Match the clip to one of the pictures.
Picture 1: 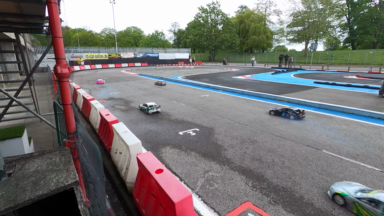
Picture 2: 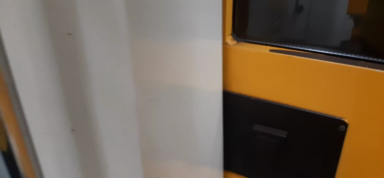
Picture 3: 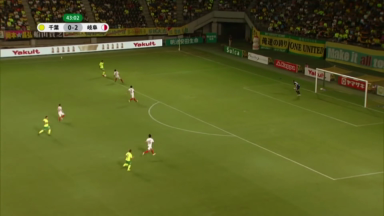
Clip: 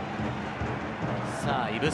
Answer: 3